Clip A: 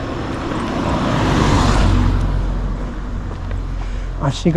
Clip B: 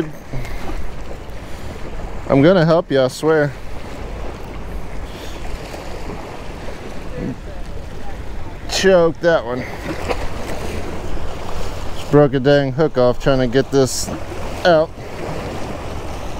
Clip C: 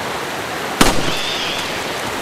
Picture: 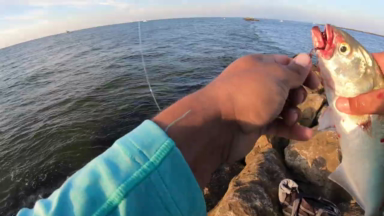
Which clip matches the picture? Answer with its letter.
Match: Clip B